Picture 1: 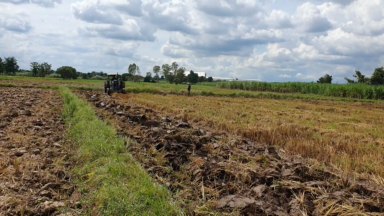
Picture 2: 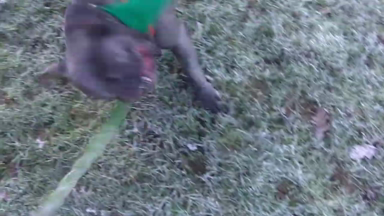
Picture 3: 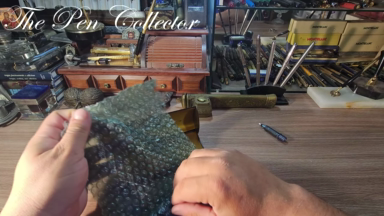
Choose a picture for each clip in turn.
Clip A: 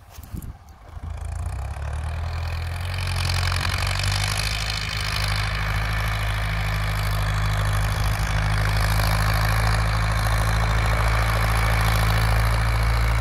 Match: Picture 1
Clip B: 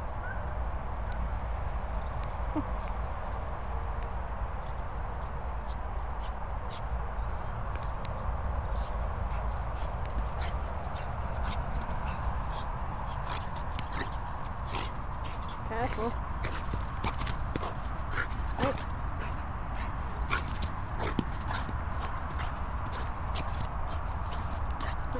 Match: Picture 2